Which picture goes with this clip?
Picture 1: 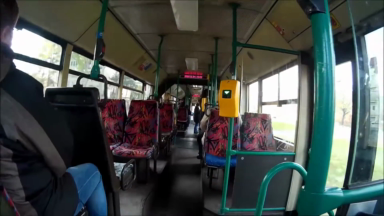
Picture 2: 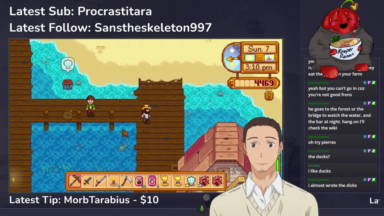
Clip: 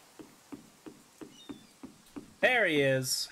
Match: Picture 2